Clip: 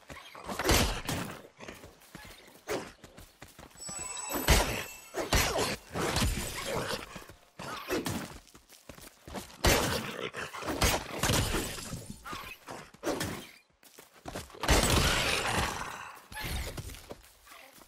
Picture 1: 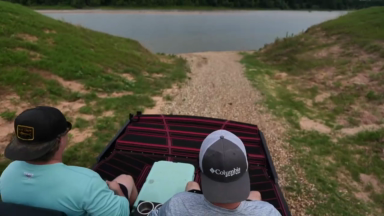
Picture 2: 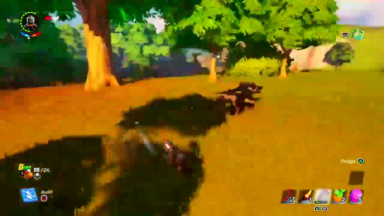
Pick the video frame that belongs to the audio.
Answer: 2